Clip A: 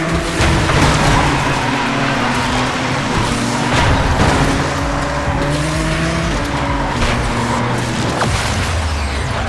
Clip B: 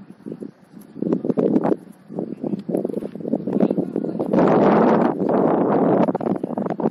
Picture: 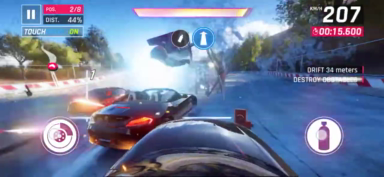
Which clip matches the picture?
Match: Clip A